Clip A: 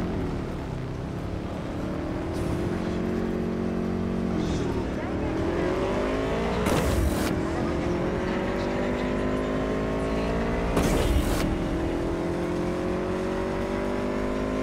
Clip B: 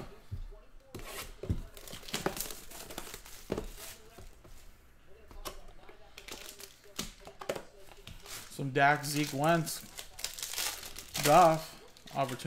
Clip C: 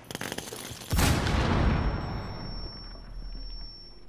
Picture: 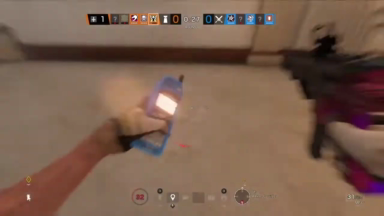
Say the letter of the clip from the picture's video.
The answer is C